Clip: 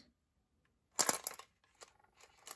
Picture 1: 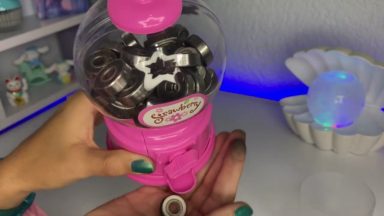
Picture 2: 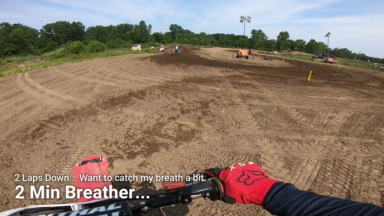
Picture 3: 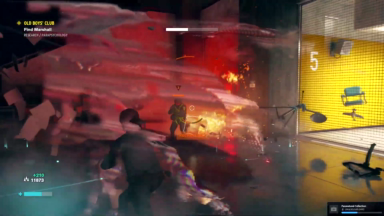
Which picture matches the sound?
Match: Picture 1